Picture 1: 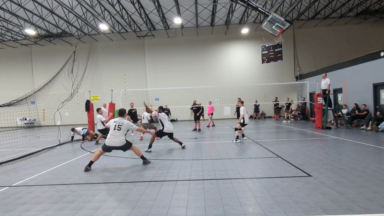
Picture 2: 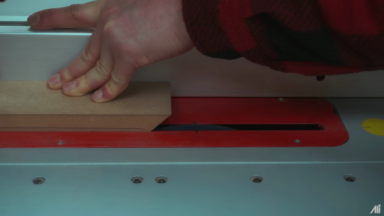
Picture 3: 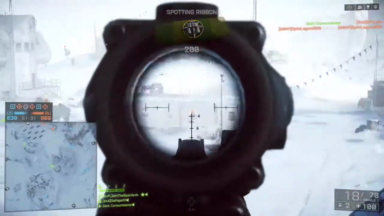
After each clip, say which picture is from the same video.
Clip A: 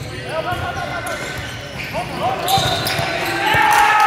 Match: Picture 1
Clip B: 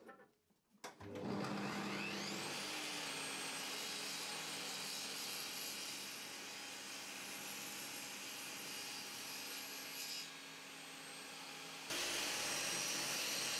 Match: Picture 2